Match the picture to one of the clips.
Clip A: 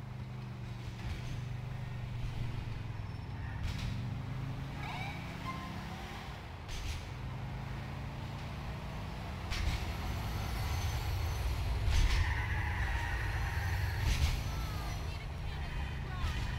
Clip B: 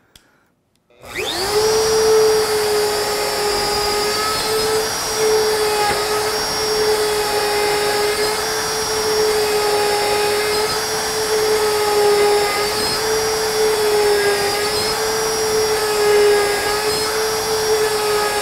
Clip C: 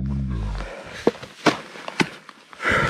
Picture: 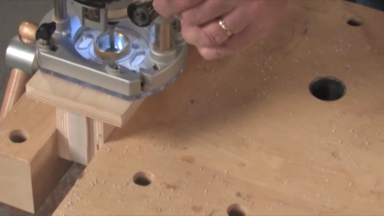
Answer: B